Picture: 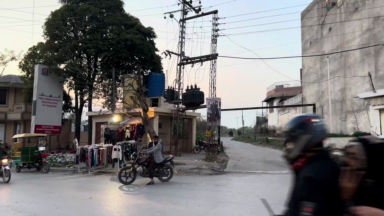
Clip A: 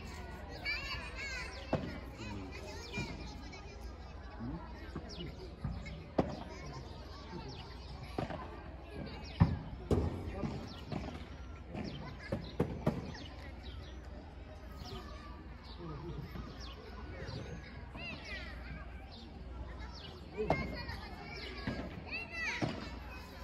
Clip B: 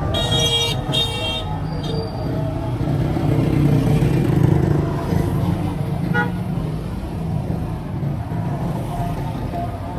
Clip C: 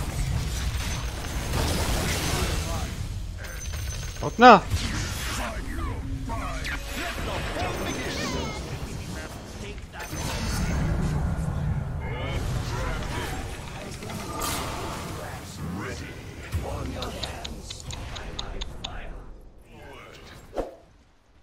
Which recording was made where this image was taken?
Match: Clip B